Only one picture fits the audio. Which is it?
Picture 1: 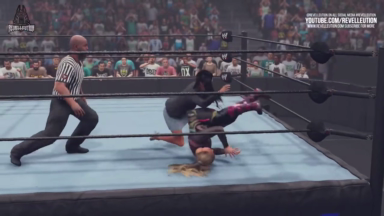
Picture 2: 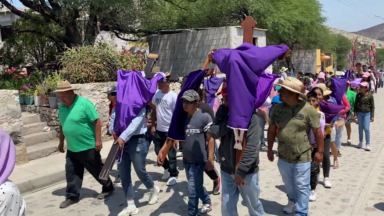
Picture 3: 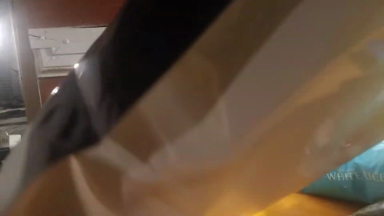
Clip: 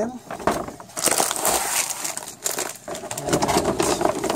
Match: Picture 3